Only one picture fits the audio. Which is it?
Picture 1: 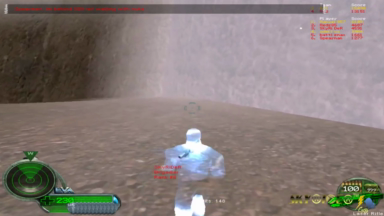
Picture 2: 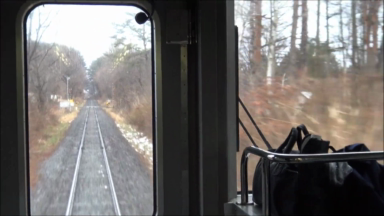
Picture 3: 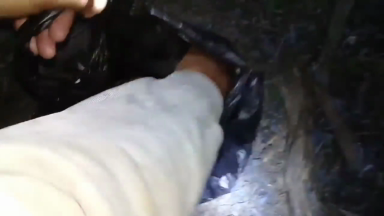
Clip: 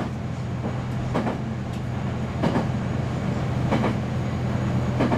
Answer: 2